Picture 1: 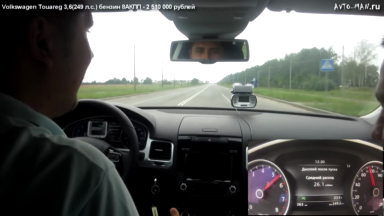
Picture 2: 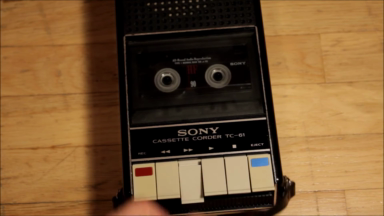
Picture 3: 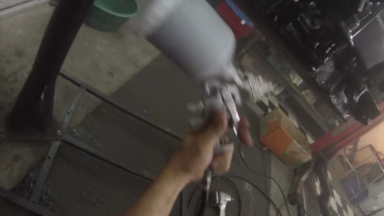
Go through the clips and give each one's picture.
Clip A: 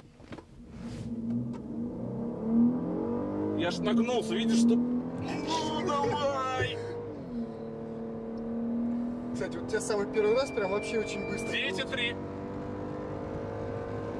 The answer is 1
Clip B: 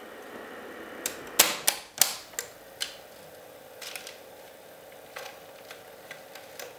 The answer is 2